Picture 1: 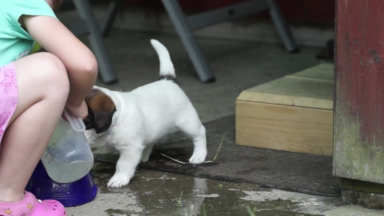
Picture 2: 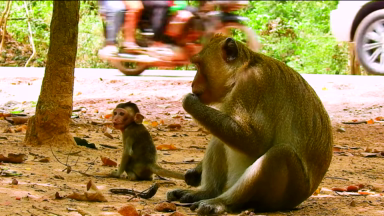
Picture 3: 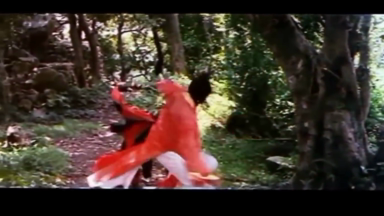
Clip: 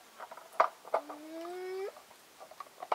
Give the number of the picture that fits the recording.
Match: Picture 1